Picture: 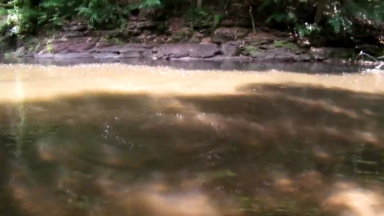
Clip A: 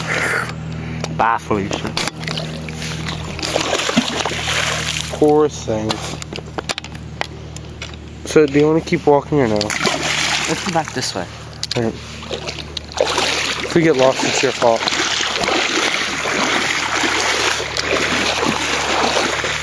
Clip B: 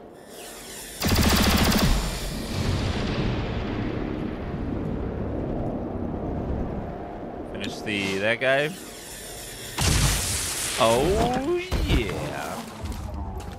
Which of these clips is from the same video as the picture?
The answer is A